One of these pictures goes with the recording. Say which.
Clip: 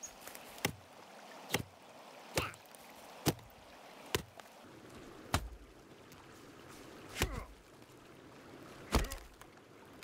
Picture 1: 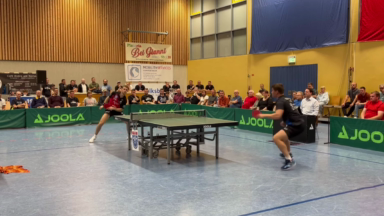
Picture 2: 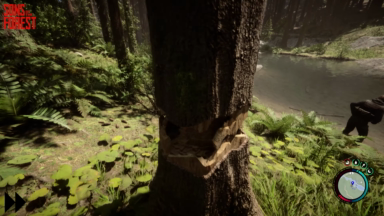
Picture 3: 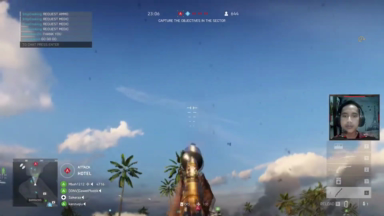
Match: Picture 2